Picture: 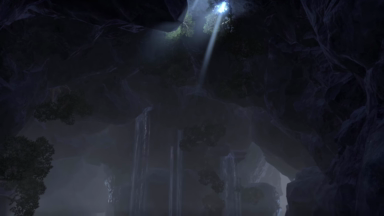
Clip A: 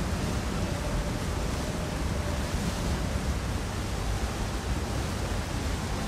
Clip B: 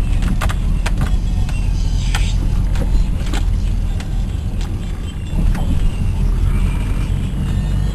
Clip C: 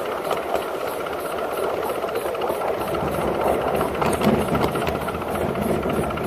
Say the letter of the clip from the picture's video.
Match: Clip A